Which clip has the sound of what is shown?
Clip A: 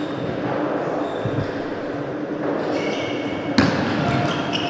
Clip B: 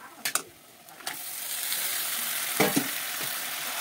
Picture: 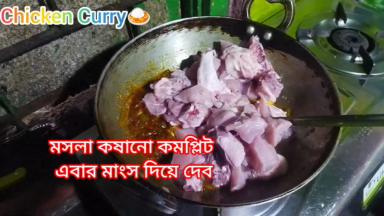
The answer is B